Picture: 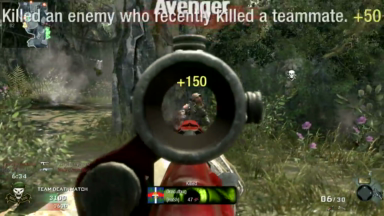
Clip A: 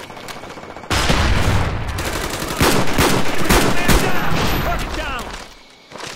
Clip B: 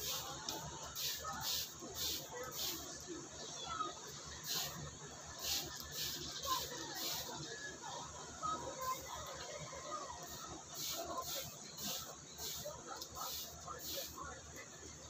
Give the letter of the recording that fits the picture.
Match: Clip A